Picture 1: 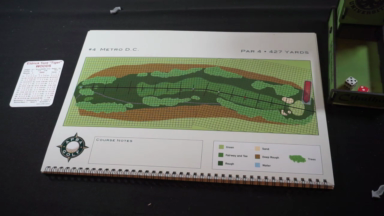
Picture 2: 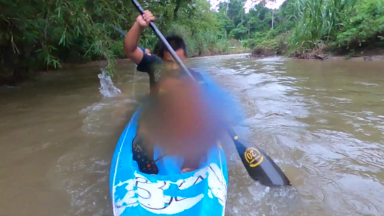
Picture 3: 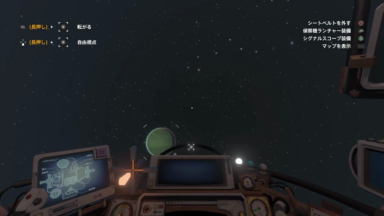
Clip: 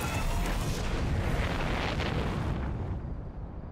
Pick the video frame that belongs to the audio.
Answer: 3